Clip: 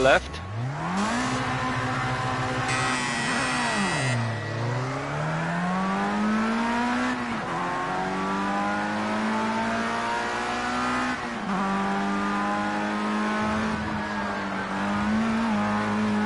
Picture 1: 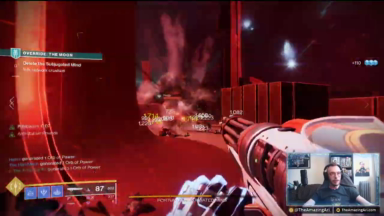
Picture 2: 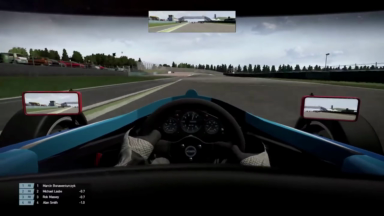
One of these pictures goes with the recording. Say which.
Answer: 2